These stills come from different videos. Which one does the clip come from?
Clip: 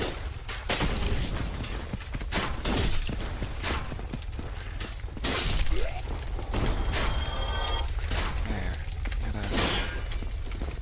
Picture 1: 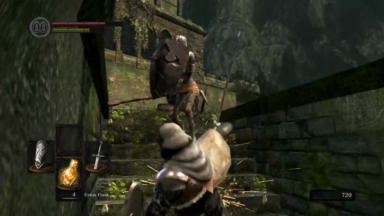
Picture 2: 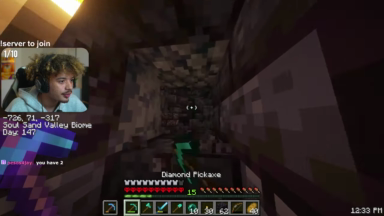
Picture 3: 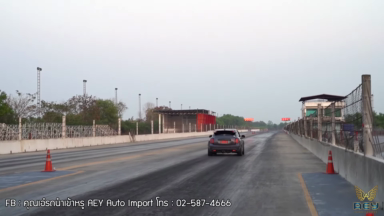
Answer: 1